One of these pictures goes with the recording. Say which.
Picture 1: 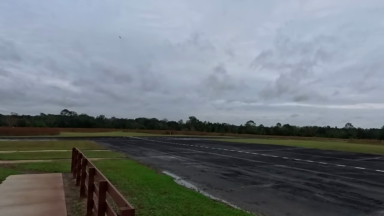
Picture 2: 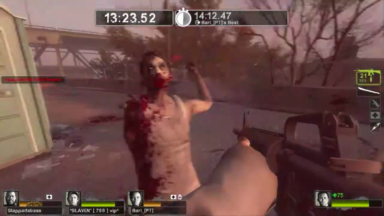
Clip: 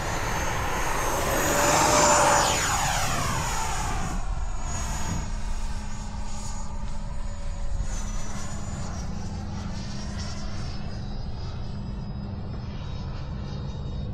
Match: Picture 1